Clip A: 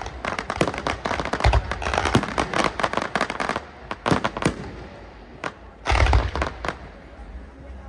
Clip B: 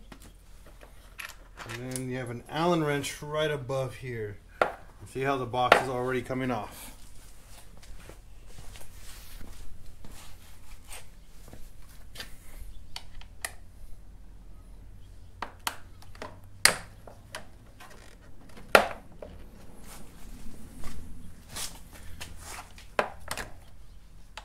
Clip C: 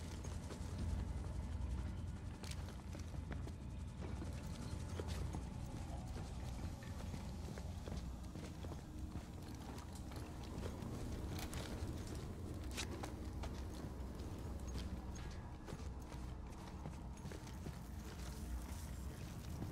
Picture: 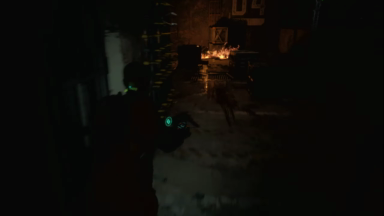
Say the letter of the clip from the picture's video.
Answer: C